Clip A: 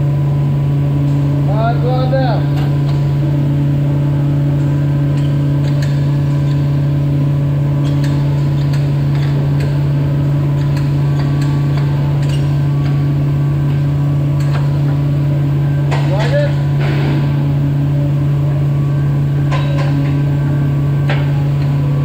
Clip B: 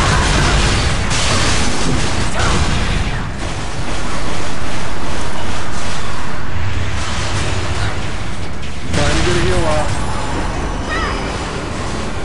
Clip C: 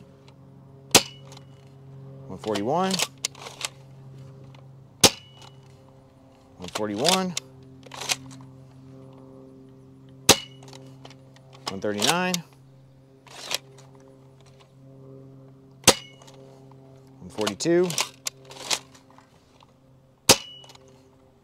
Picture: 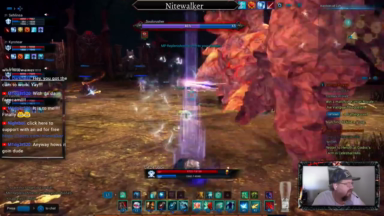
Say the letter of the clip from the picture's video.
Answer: B